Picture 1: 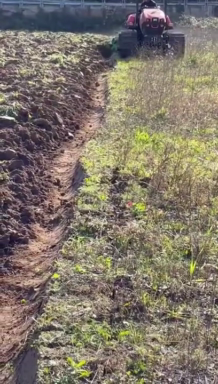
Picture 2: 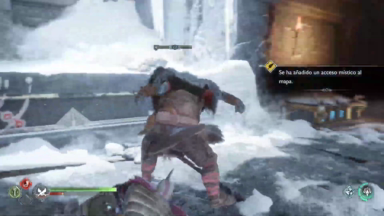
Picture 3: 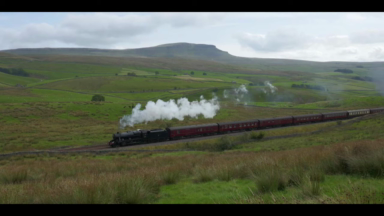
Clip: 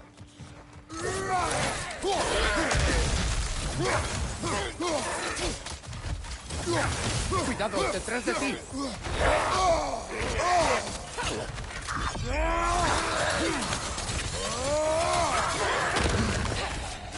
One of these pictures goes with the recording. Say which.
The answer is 2